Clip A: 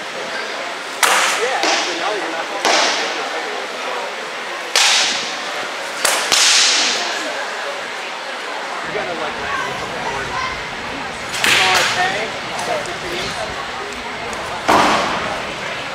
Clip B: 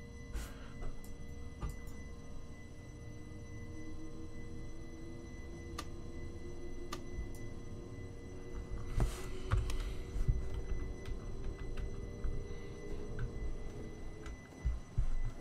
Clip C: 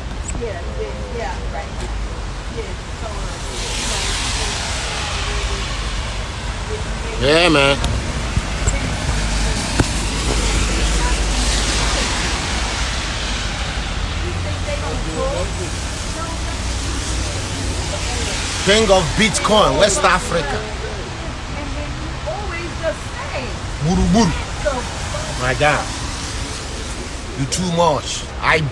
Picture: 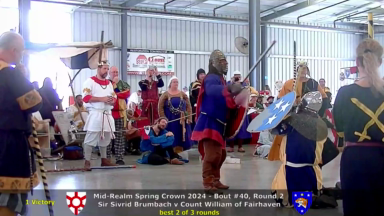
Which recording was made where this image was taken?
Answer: A